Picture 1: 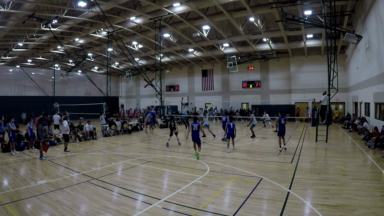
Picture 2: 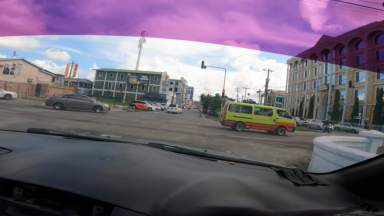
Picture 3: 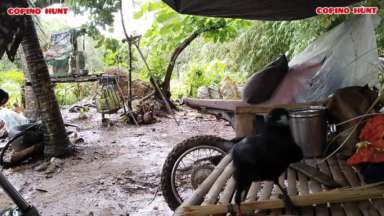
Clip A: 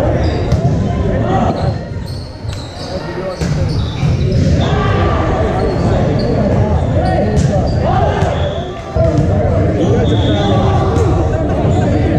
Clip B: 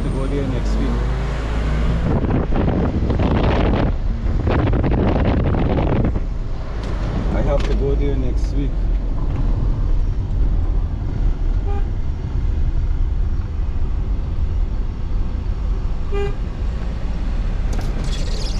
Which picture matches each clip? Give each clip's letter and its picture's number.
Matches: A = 1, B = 2